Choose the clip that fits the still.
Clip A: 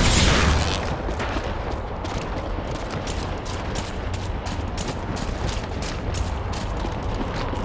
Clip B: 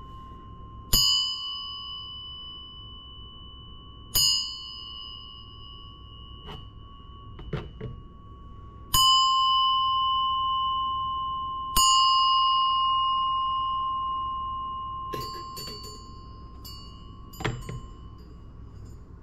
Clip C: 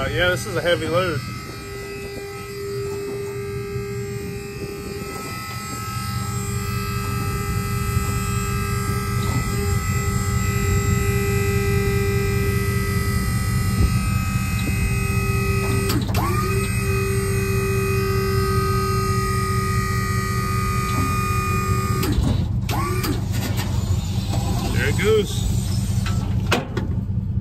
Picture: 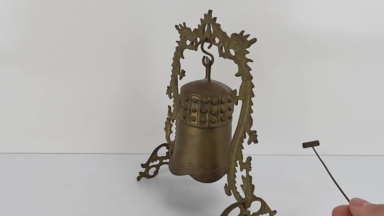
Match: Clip B